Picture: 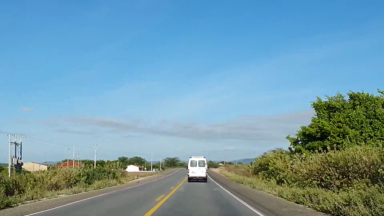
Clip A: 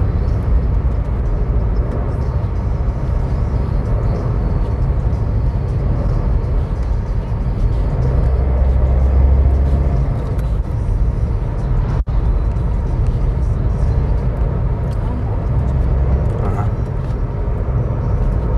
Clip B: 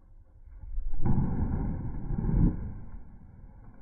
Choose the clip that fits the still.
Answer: A